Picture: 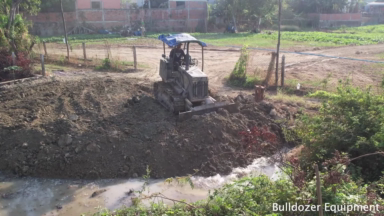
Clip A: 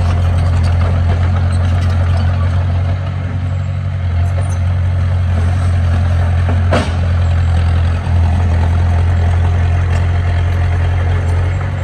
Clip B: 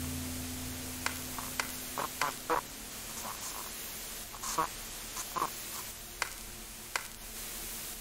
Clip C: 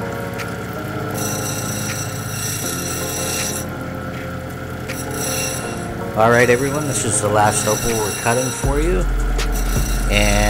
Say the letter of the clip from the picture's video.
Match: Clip A